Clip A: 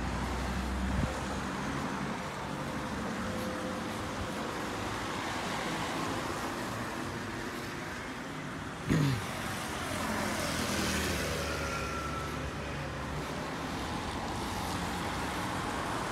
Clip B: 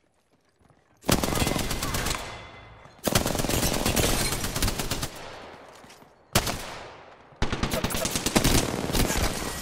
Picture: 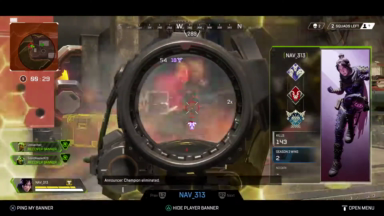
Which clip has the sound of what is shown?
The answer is B